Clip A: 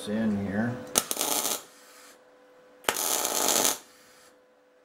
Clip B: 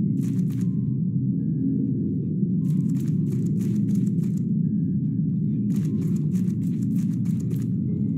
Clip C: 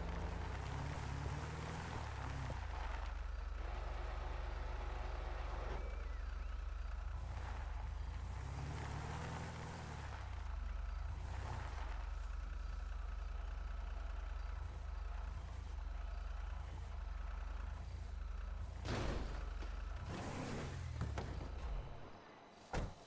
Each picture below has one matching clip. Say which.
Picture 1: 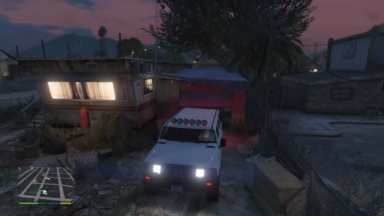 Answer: C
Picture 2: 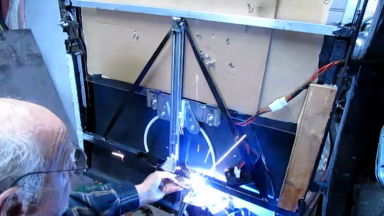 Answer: A